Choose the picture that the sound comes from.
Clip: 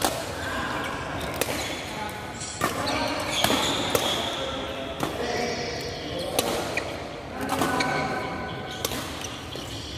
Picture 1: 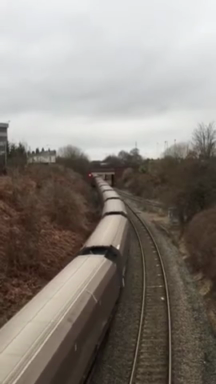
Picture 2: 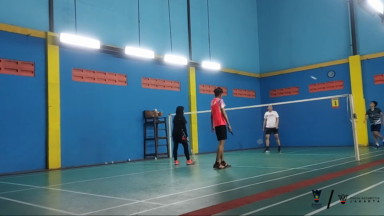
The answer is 2